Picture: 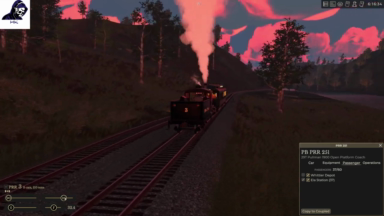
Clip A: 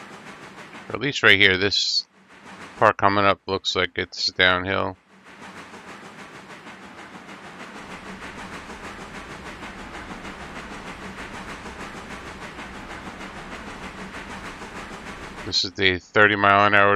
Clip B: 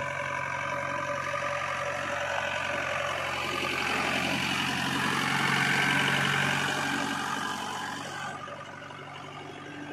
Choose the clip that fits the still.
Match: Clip A